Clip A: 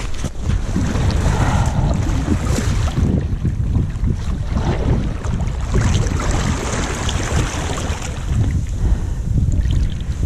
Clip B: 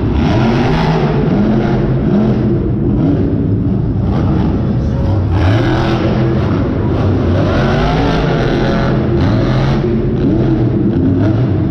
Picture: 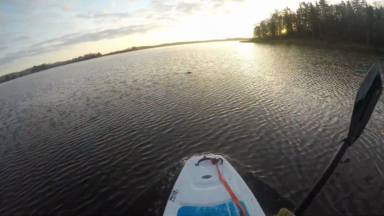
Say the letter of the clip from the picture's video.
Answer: A